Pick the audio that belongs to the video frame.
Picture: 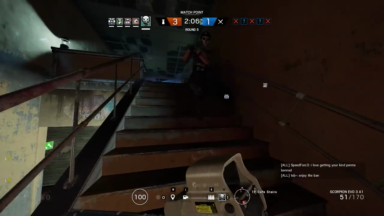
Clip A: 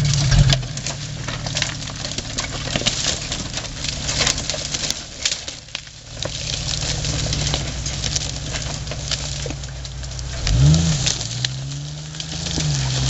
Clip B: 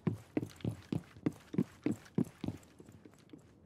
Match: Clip B